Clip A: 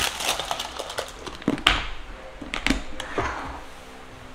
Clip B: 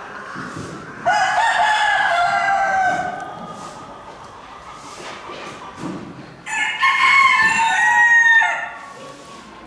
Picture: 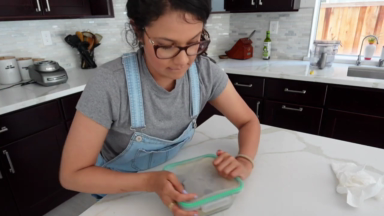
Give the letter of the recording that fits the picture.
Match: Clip A